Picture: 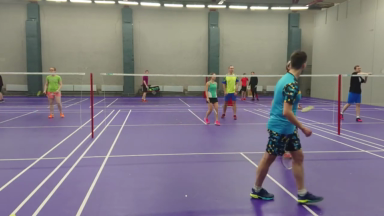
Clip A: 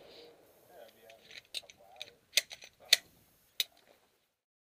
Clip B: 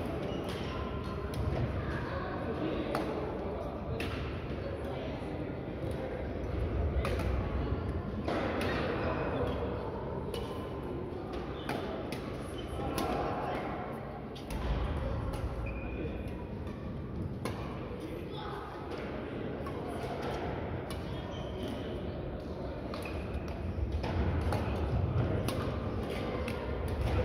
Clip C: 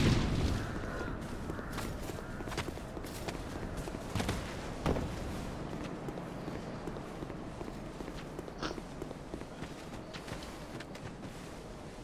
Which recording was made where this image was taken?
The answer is B